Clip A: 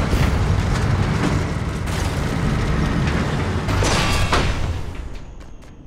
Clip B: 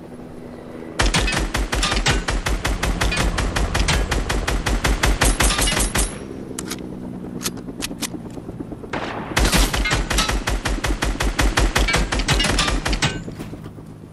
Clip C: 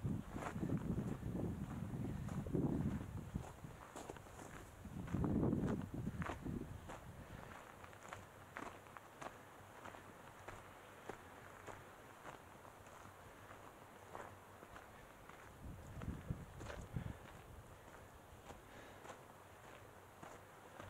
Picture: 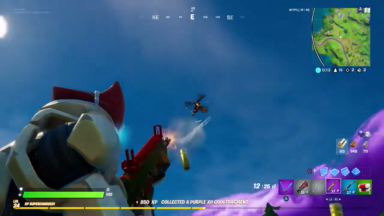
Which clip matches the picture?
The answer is B